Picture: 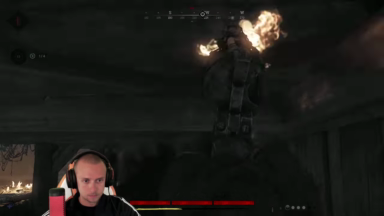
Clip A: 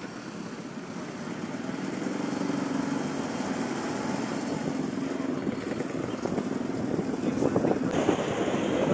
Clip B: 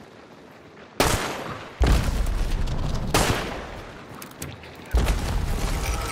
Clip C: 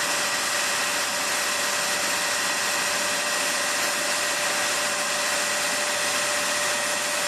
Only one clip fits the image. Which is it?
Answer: B